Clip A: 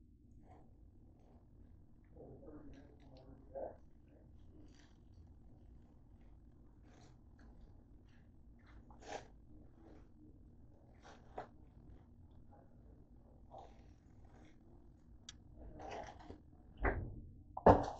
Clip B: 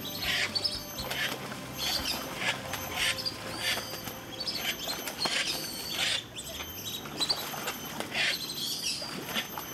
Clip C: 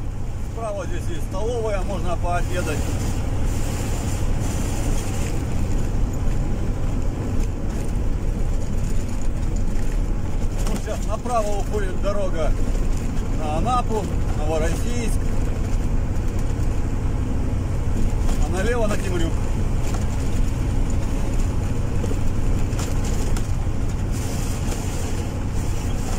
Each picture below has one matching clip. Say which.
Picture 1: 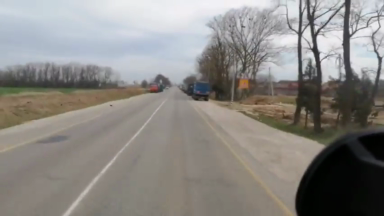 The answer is C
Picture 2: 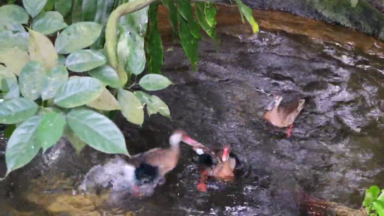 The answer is B